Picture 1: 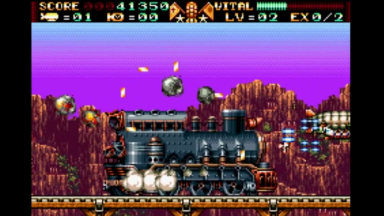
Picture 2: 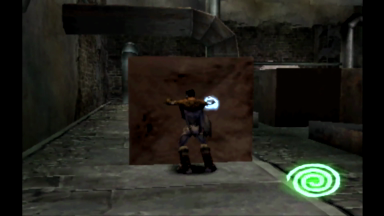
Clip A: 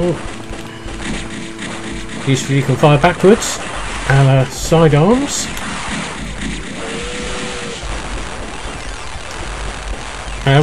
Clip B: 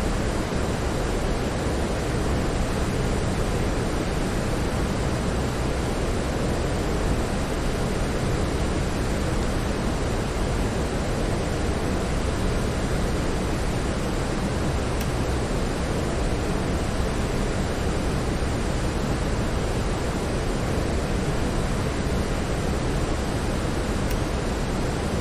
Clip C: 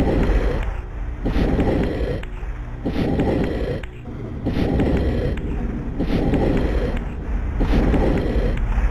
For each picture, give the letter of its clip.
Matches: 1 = A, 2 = C